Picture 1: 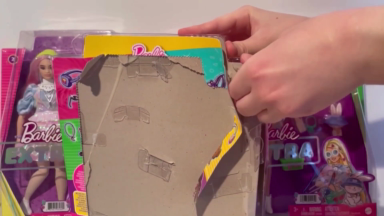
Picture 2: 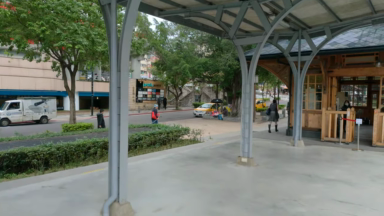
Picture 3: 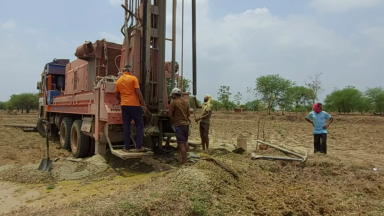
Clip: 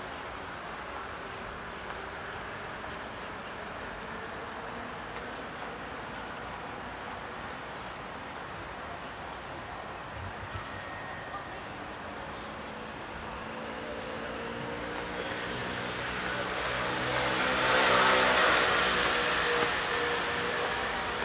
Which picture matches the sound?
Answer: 2